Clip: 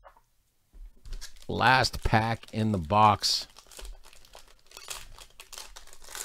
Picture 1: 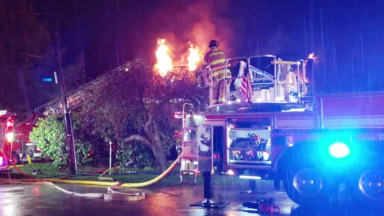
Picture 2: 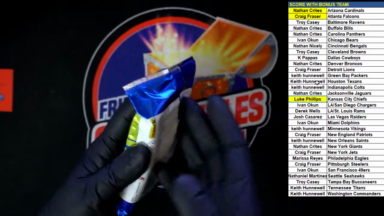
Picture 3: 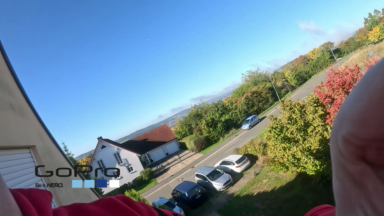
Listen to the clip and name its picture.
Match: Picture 2